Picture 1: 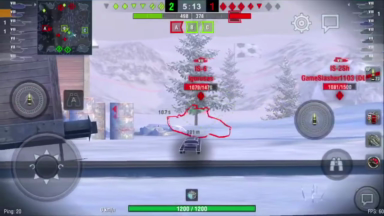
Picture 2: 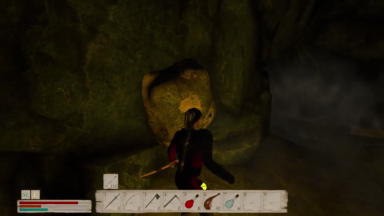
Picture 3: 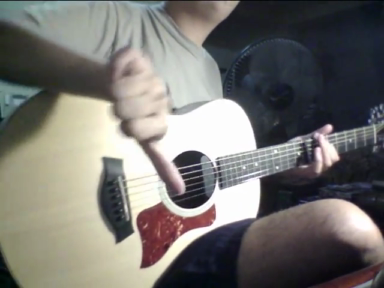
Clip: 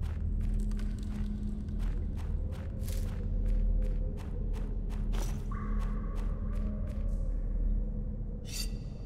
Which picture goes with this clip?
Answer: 2